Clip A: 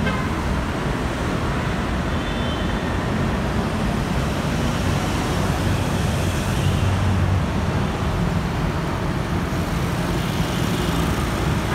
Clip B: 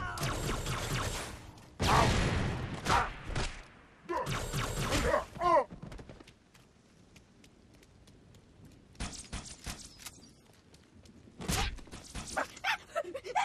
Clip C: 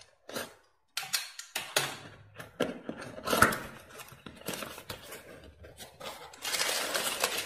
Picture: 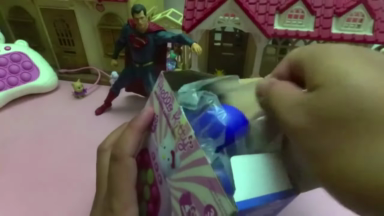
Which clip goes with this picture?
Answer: C